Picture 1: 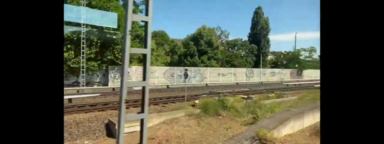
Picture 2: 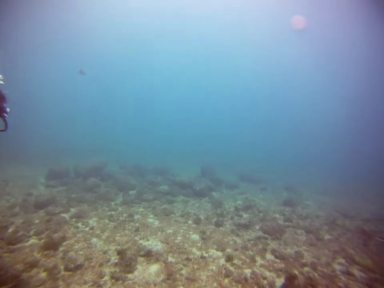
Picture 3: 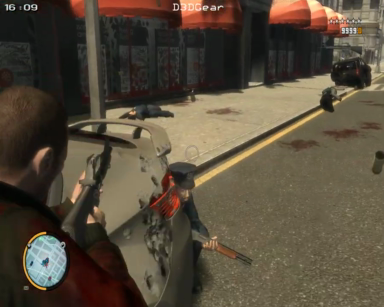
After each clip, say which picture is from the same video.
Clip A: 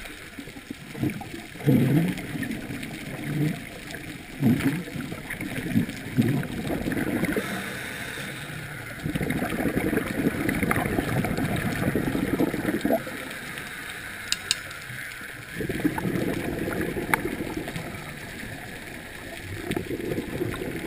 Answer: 2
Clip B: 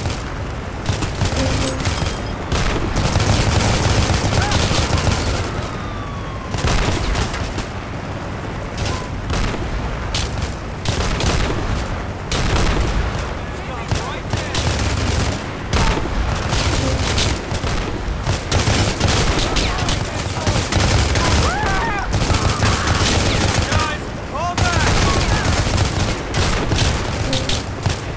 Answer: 3